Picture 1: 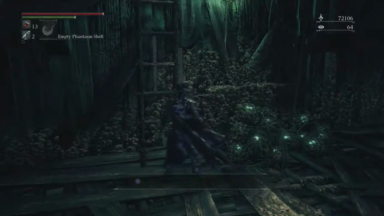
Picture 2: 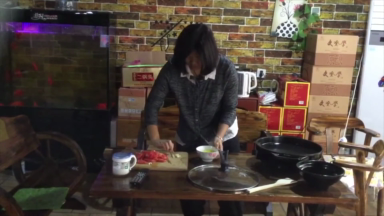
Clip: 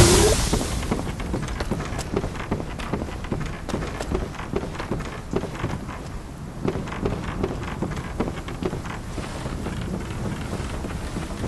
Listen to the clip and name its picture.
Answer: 1